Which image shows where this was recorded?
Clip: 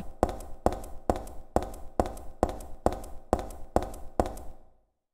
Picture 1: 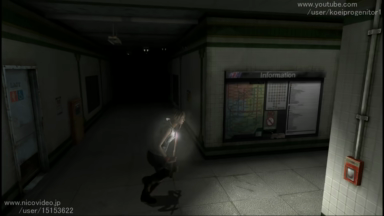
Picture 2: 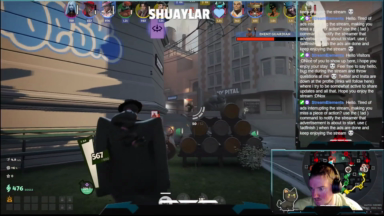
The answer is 1